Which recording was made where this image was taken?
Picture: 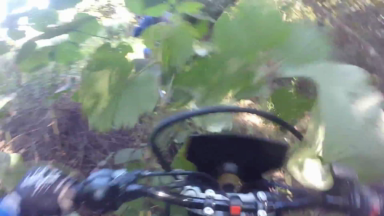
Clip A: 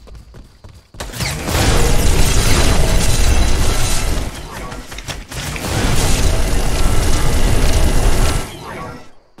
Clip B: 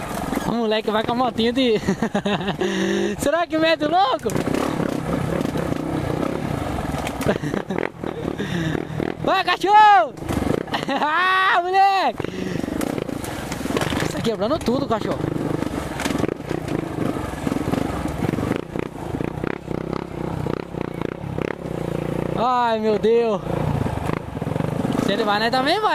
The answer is B